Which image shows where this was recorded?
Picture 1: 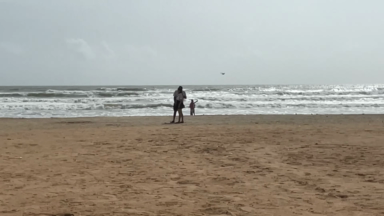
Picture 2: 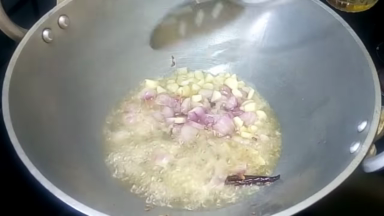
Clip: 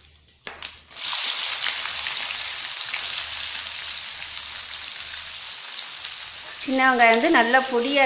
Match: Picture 2